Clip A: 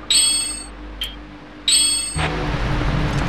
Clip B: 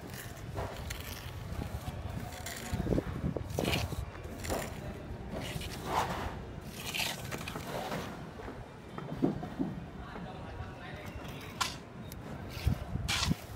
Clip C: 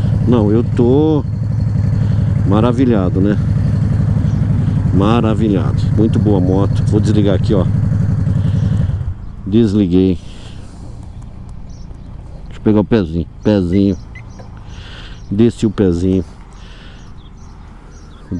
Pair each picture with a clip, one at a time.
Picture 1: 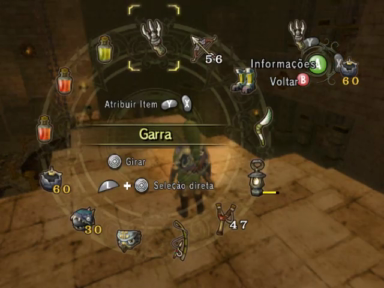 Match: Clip A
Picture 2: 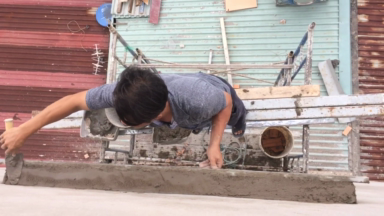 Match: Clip B